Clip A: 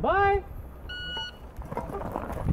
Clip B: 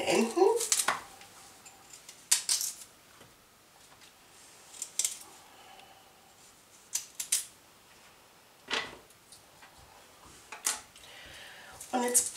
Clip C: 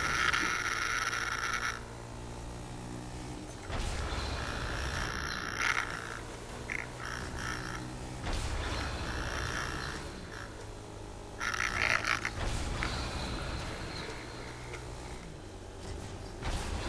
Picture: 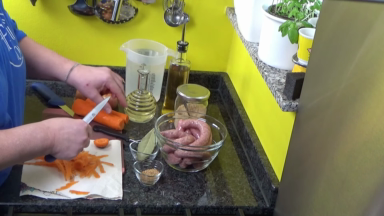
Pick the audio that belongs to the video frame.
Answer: B